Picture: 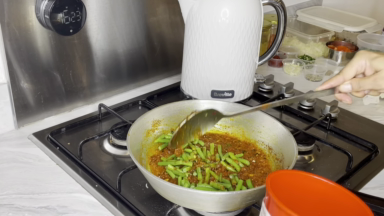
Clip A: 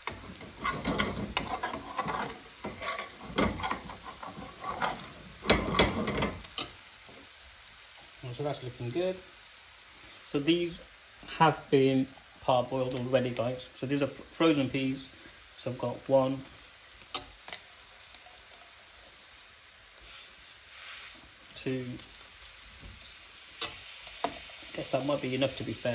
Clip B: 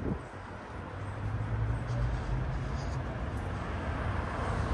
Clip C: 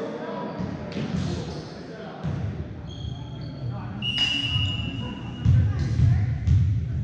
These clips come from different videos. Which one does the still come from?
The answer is A